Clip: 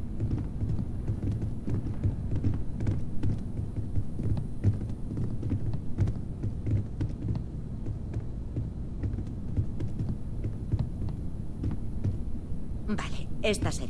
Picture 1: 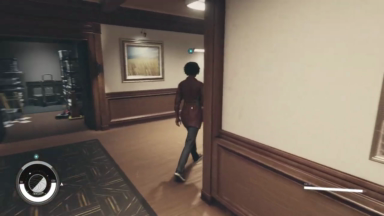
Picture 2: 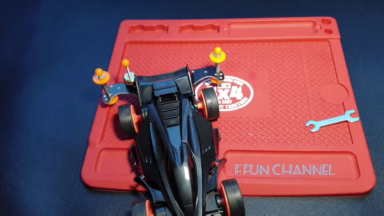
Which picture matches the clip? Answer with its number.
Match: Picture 1